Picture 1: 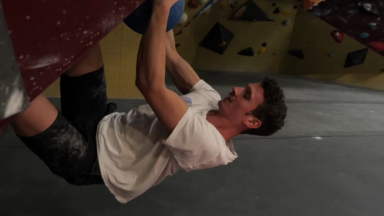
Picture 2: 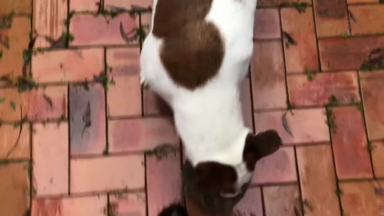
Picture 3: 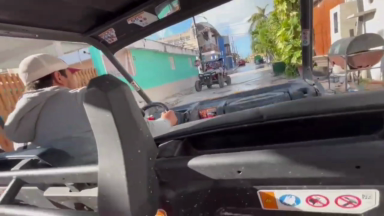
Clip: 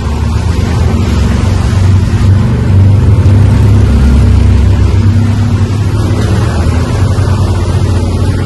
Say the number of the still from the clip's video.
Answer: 3